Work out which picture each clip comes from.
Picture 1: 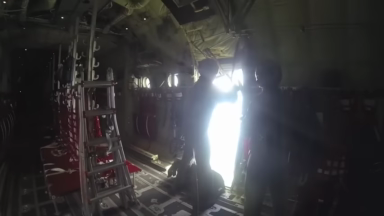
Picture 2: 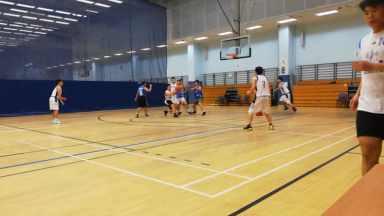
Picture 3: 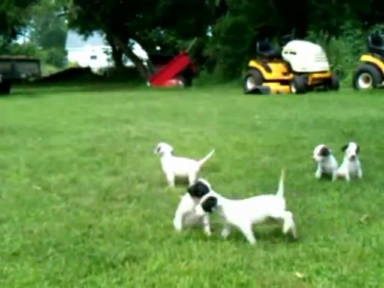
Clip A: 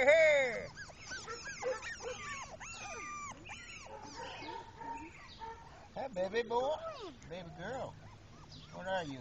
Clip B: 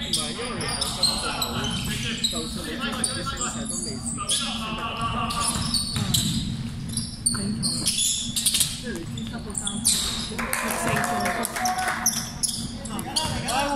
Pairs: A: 3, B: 2